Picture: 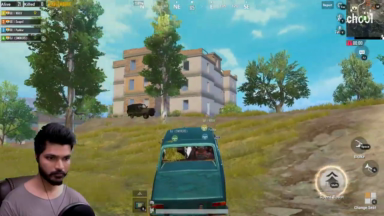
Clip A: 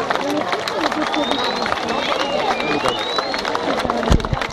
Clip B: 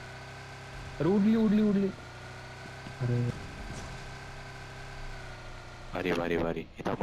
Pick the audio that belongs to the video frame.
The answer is B